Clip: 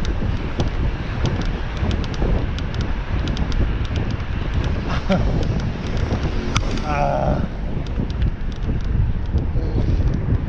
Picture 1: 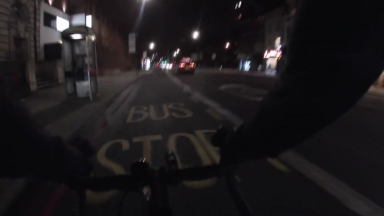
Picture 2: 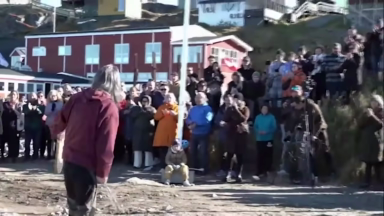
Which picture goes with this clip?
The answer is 1